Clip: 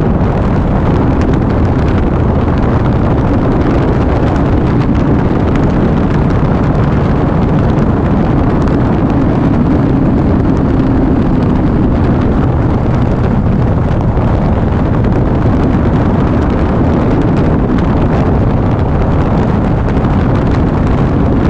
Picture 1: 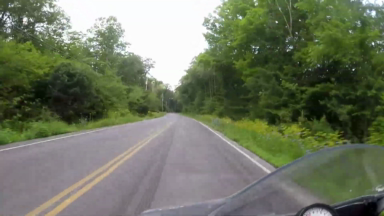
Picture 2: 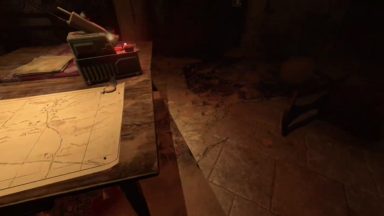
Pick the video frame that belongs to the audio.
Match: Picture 1